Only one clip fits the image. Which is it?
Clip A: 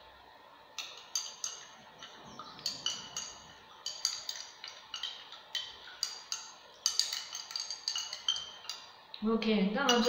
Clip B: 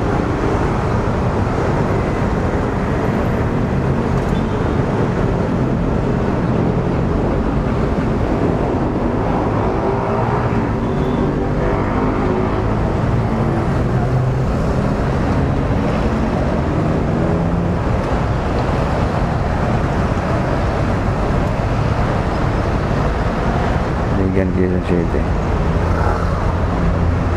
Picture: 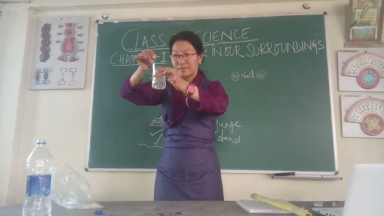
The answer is A